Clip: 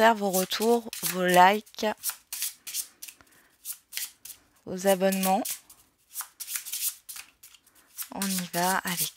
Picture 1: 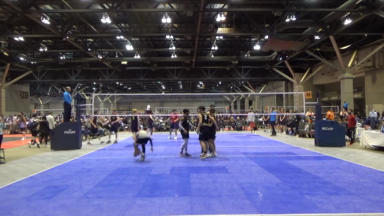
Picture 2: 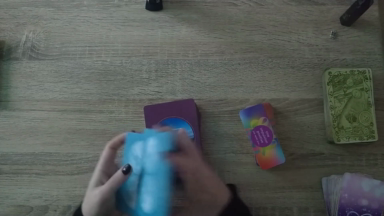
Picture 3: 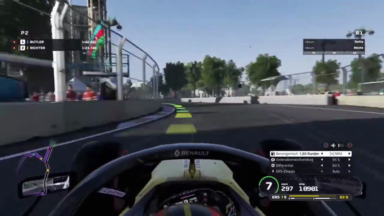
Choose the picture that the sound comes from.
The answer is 2